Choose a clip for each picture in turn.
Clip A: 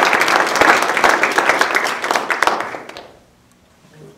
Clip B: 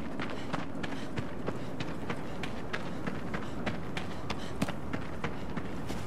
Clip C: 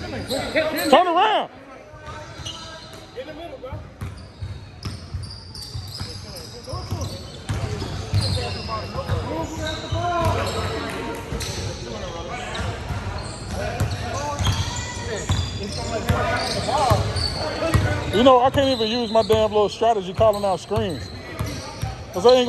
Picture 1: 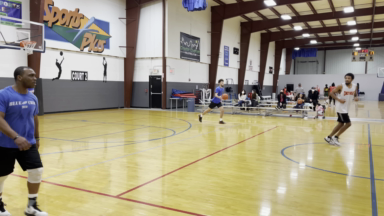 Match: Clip C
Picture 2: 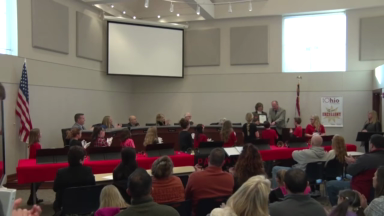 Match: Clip A